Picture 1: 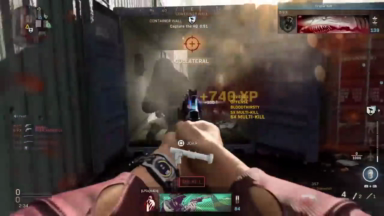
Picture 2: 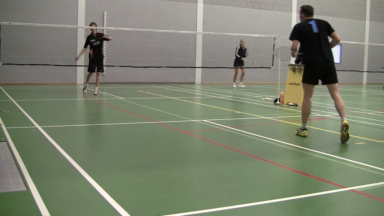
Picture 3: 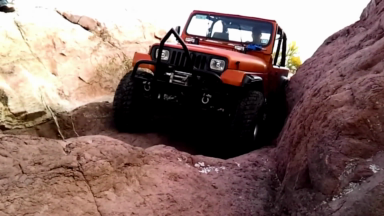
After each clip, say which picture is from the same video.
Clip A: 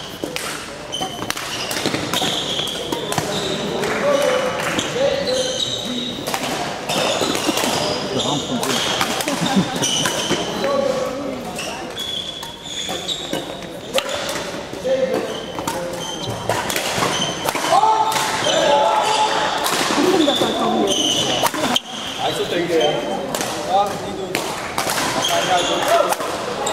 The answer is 2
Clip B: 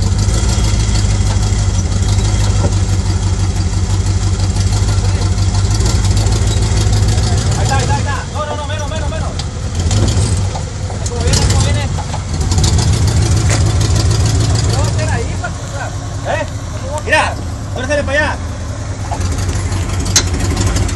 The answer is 3